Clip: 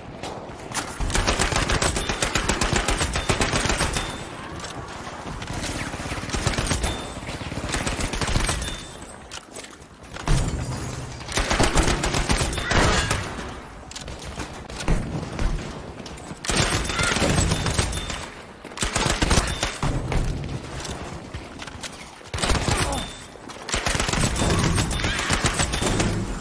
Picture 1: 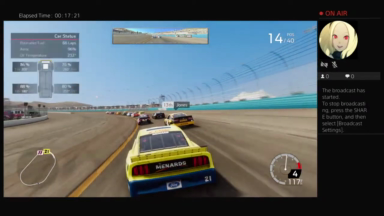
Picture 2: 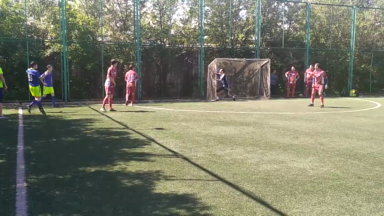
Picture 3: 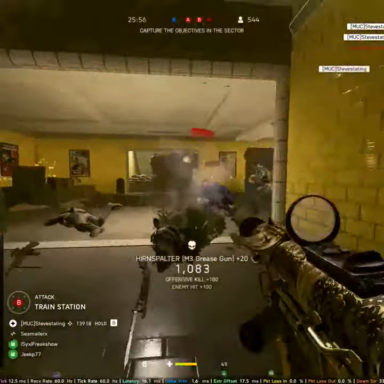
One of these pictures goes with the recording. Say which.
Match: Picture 3